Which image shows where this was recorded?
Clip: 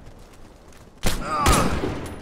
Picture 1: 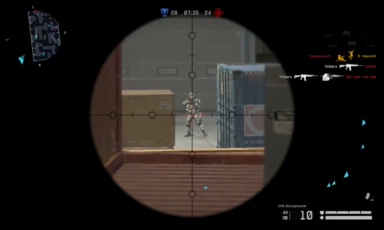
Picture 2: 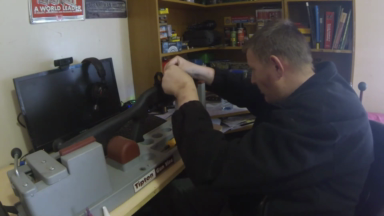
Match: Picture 1